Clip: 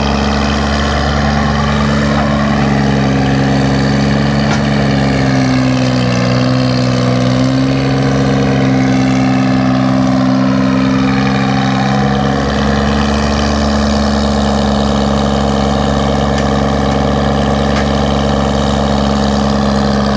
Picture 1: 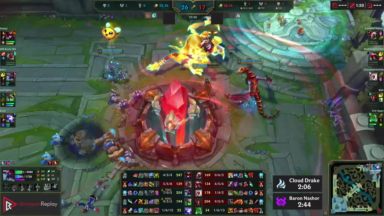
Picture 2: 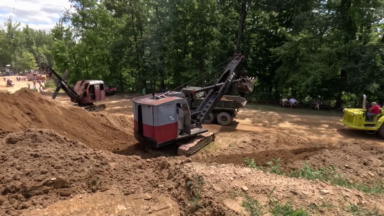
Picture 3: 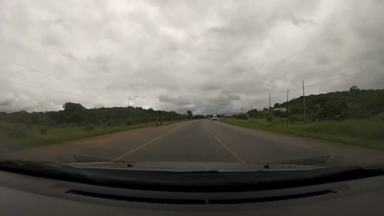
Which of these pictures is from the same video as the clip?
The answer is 2